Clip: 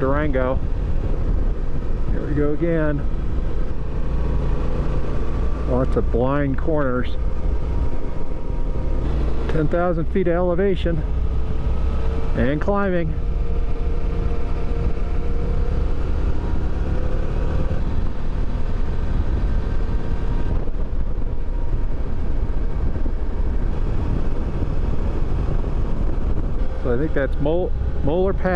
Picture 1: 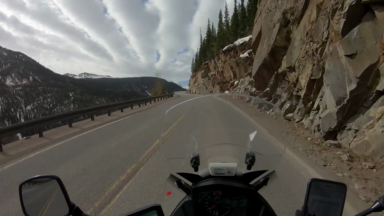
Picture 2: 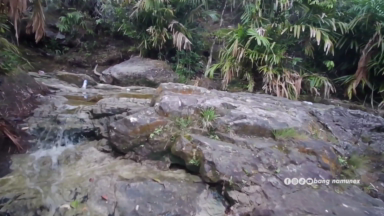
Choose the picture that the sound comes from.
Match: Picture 1